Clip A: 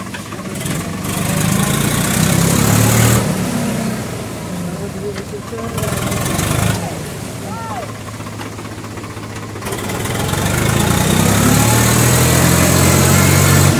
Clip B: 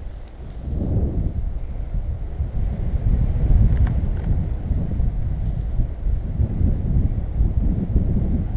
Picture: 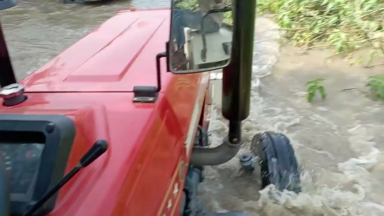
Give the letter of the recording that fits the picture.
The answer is A